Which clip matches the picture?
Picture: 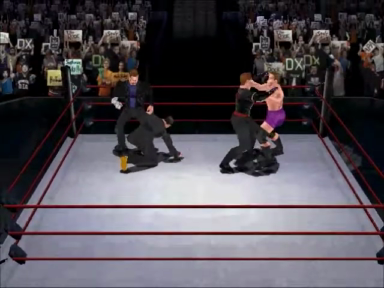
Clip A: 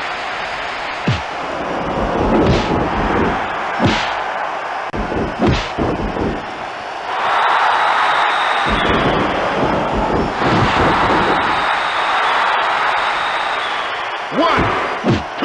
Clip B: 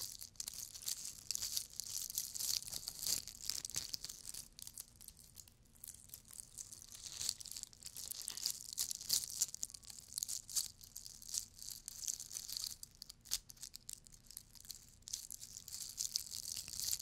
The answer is A